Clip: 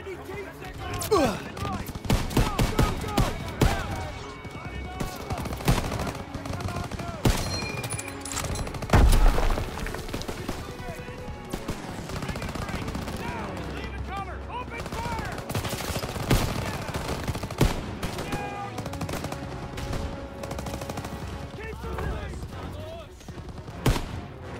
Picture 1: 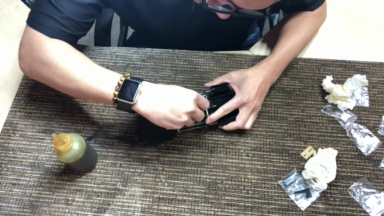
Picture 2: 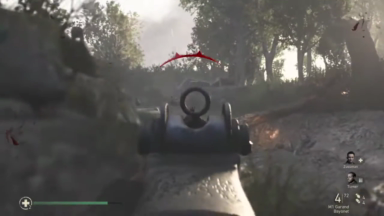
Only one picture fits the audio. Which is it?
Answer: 2